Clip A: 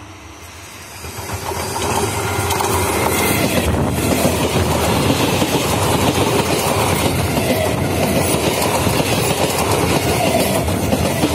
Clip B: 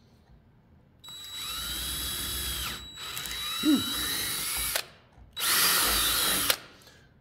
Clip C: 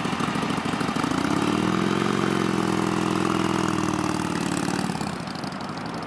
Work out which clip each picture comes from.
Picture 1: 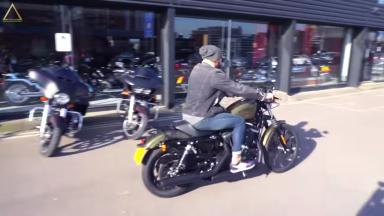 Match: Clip C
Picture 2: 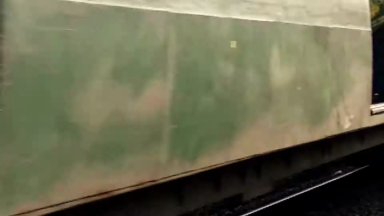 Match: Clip A